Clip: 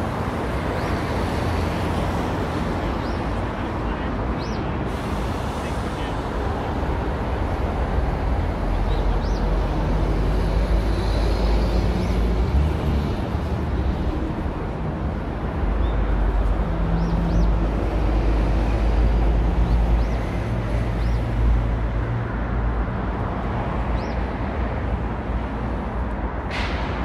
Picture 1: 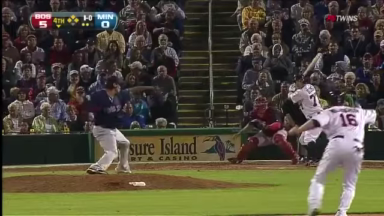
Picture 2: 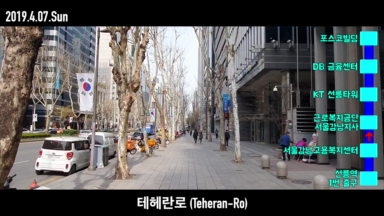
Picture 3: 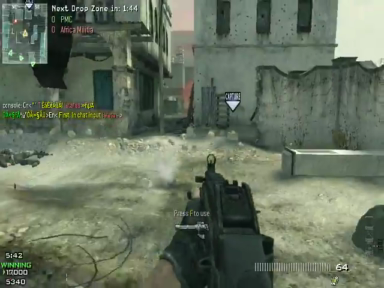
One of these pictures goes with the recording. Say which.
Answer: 2